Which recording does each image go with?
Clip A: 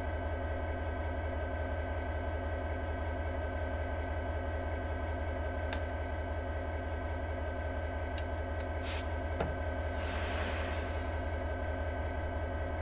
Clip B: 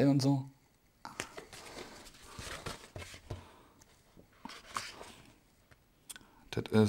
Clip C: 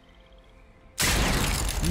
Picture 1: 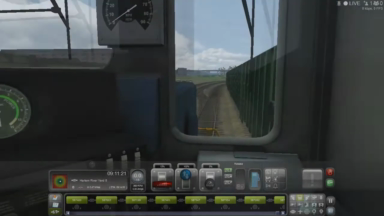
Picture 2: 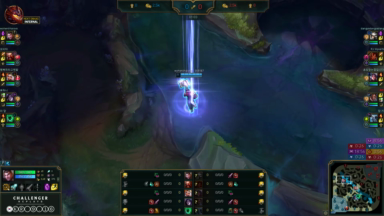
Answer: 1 A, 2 C